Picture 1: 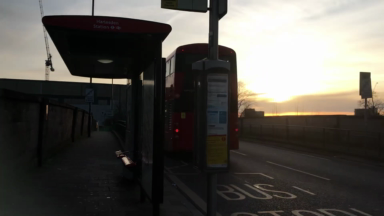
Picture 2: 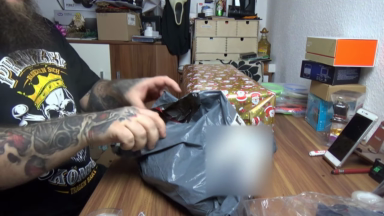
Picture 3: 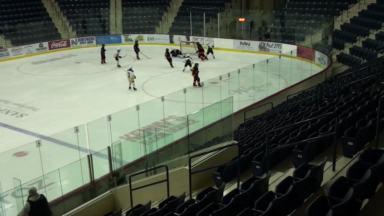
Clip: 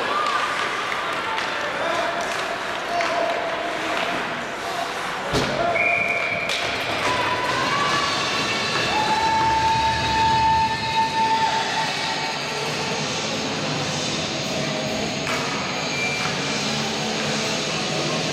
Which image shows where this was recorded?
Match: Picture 3